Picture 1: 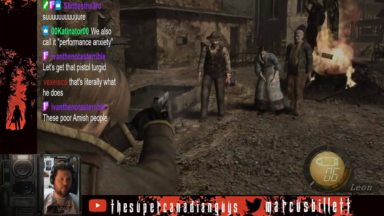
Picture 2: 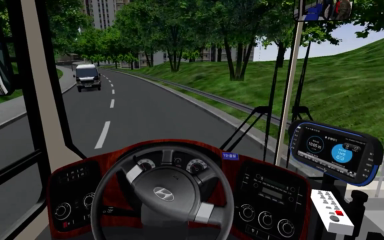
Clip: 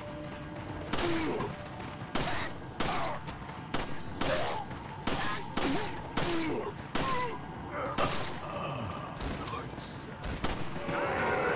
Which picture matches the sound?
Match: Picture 1